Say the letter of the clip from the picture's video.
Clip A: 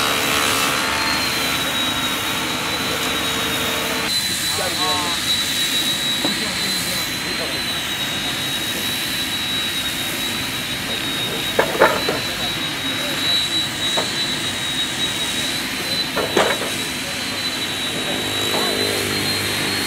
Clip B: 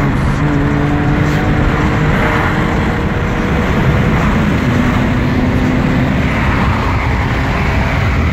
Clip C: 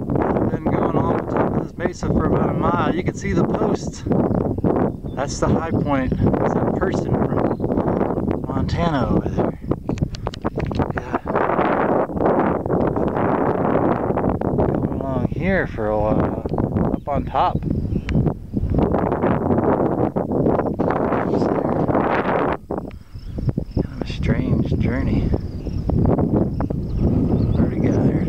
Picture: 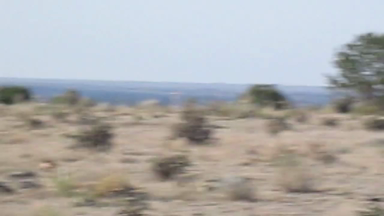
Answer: C